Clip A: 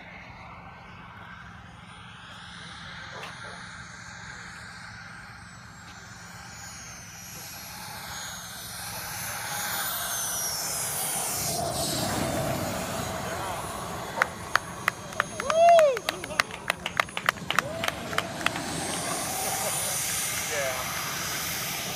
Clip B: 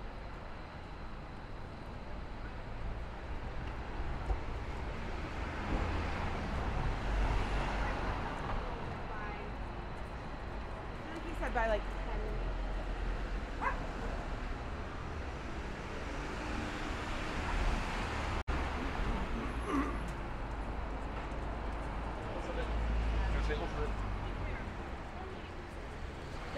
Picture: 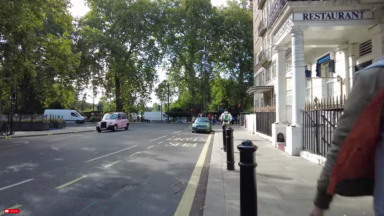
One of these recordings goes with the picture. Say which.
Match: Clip B